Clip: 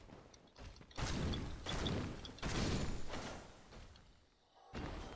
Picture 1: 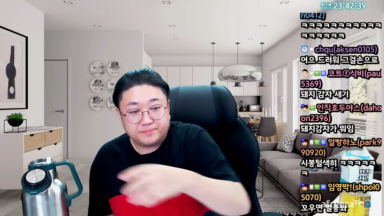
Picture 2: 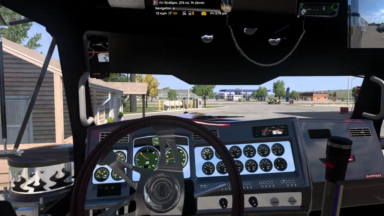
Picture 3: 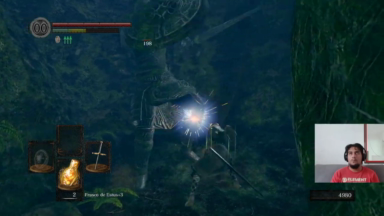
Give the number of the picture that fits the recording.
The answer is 3